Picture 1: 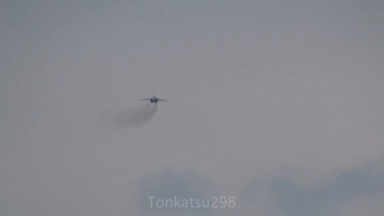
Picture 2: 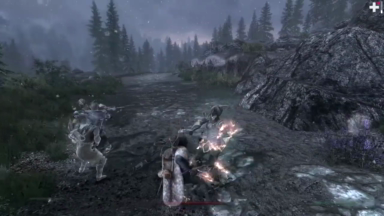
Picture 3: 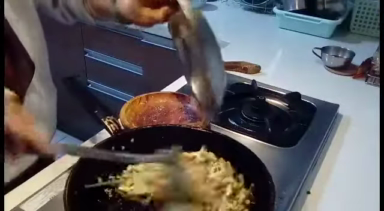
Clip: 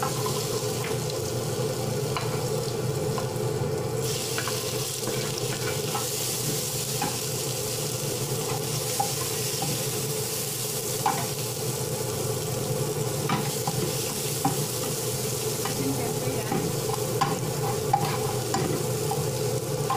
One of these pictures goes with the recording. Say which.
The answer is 3